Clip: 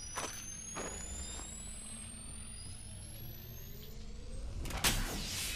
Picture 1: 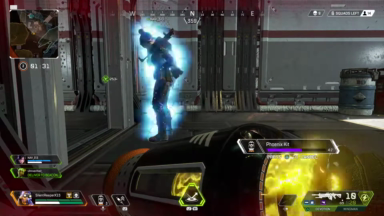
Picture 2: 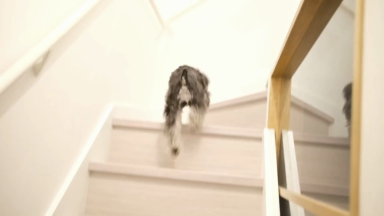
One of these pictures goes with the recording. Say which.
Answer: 1